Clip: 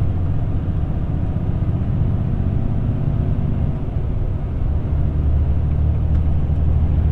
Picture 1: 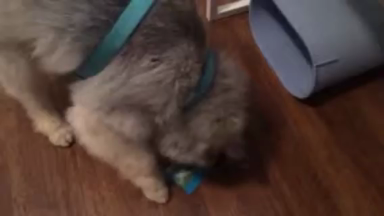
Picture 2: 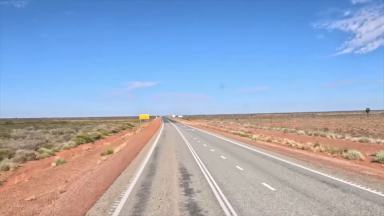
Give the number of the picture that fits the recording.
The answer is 2